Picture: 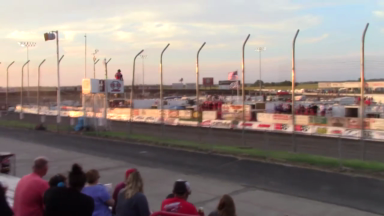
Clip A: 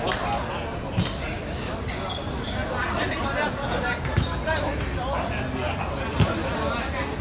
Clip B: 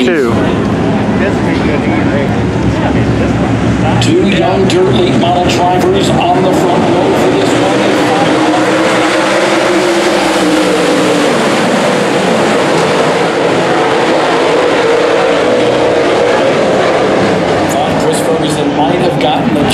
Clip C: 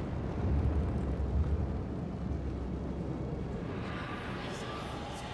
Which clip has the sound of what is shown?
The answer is B